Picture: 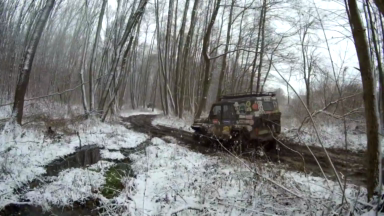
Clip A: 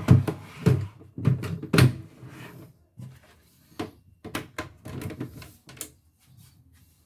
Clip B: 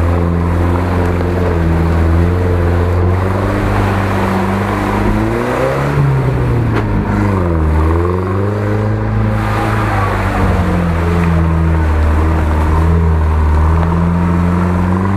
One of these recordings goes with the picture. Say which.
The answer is B